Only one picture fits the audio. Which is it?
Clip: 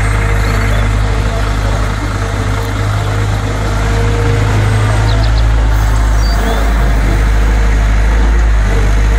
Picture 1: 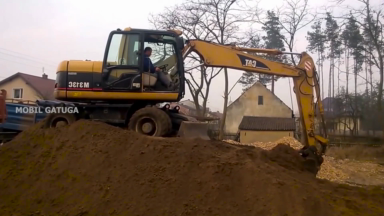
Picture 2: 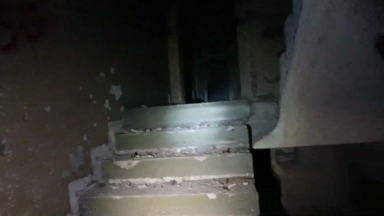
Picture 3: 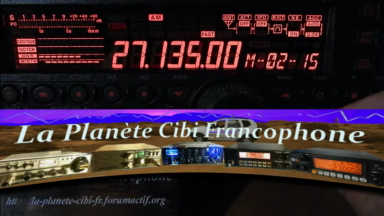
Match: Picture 1